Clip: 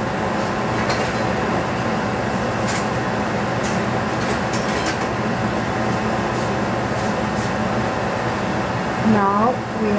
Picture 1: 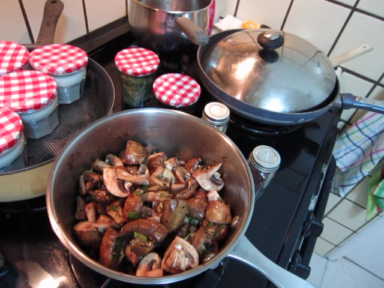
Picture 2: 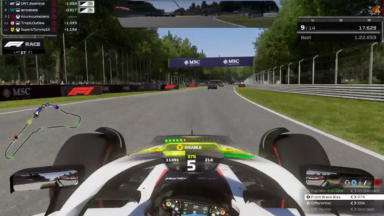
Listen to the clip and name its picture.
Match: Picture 1